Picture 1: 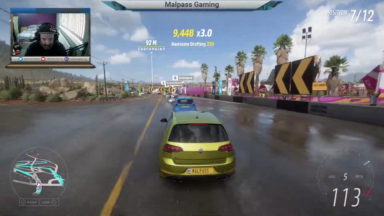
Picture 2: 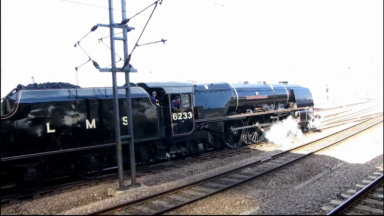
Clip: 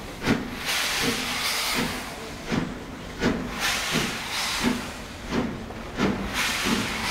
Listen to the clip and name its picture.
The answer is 2